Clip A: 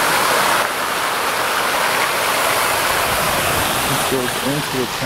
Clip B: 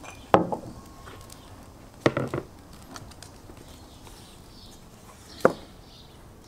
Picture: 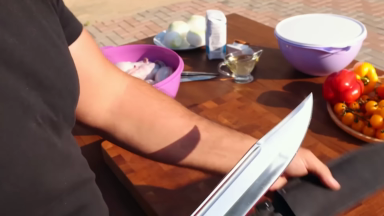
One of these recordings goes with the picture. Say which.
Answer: B